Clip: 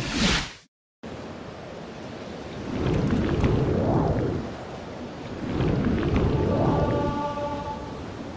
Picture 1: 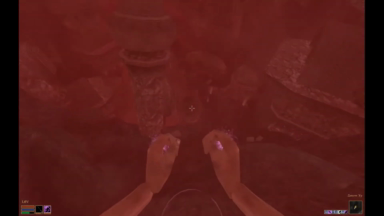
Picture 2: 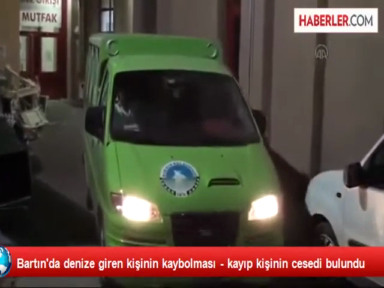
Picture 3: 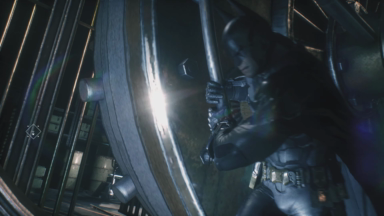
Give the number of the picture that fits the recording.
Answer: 1